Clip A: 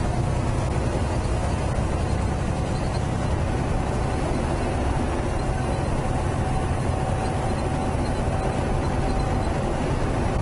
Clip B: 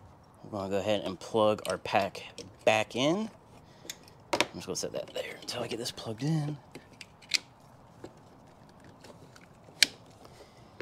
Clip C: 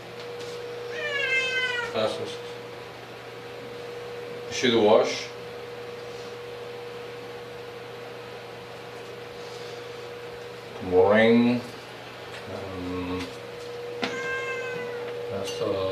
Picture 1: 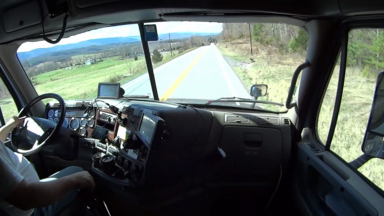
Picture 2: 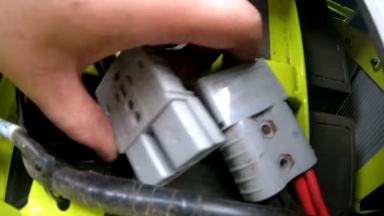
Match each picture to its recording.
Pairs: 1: A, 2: B